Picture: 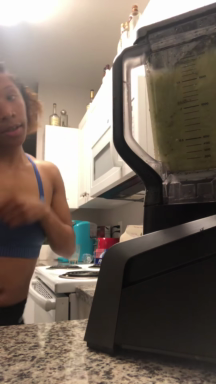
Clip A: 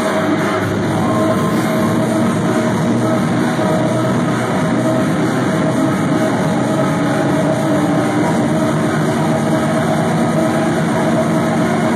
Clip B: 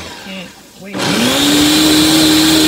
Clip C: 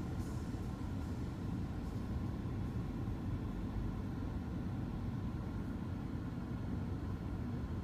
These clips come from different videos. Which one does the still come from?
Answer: B